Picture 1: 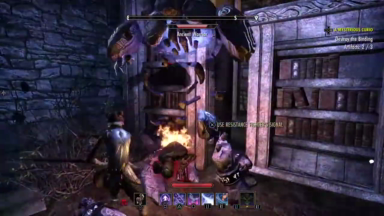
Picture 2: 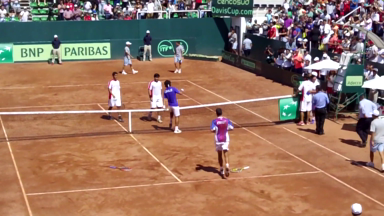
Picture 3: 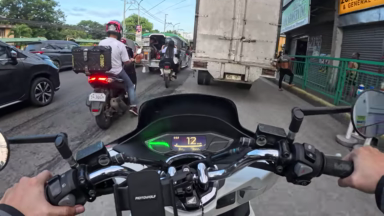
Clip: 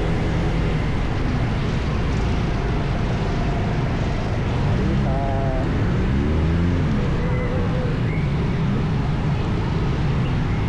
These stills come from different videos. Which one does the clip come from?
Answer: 3